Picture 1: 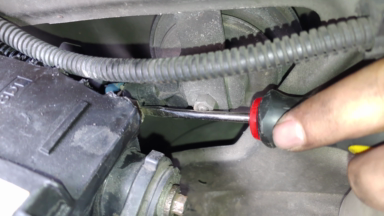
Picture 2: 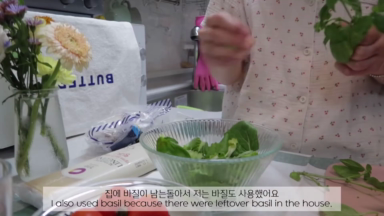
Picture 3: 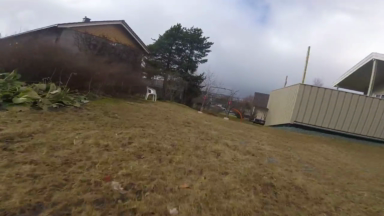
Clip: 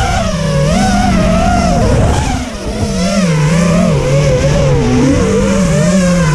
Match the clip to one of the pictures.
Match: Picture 3